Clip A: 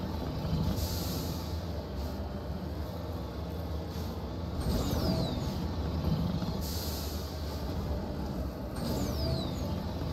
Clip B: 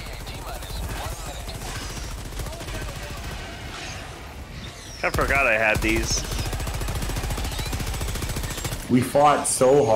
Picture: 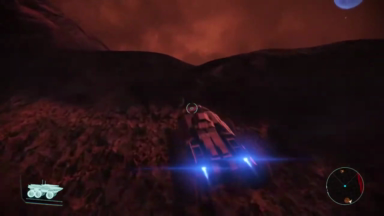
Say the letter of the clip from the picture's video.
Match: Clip A